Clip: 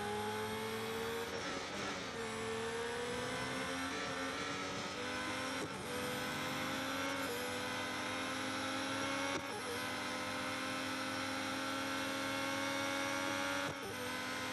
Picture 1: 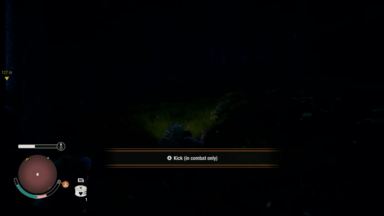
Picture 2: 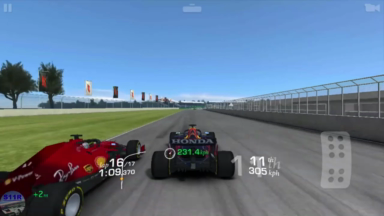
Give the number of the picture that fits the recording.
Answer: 2